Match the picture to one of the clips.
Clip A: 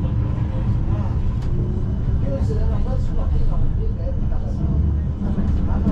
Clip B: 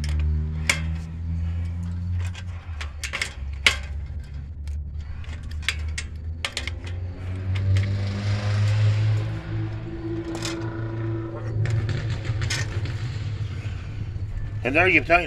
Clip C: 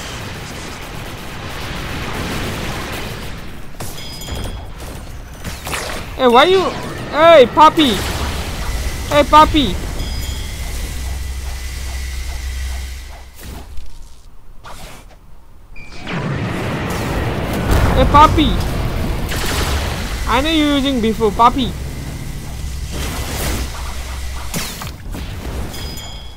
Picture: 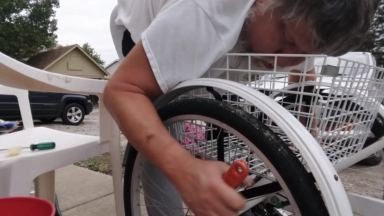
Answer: B